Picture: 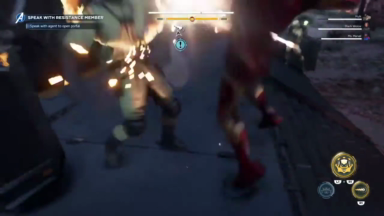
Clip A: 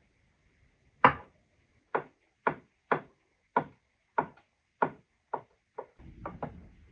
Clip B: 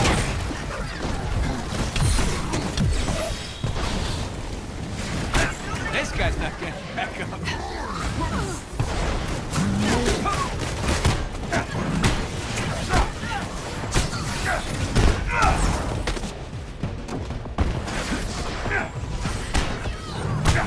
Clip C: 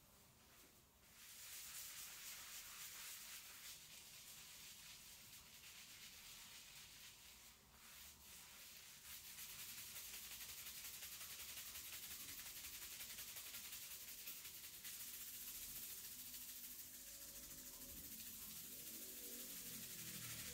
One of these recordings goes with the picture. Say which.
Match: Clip B